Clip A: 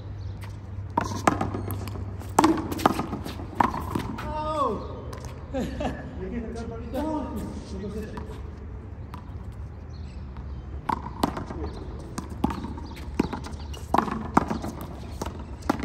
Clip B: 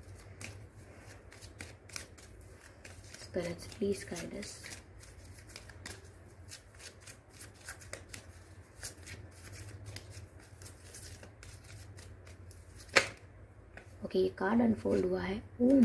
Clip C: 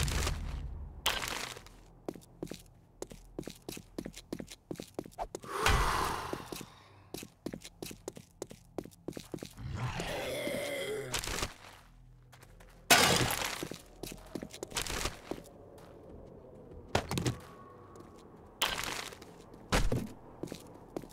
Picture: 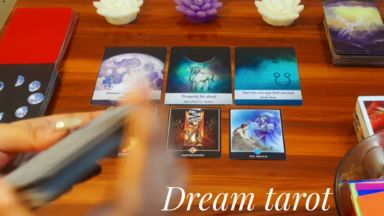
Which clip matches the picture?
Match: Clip B